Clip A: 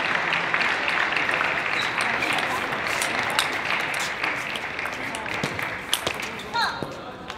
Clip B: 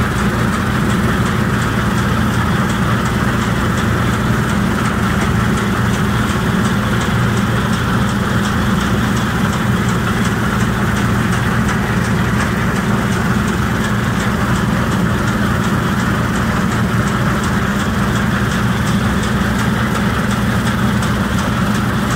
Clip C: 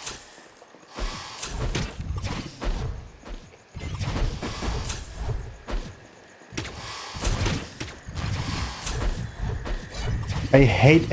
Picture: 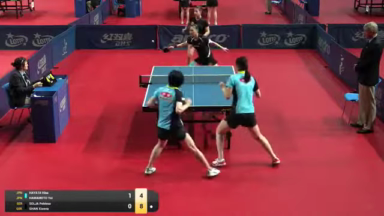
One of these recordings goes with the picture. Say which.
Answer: A